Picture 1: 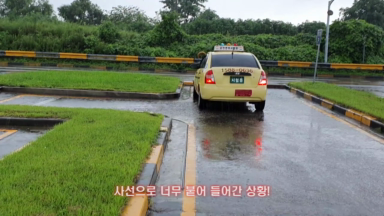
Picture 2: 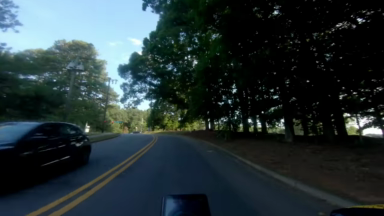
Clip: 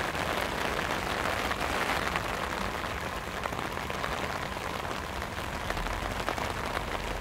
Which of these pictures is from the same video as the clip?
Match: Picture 1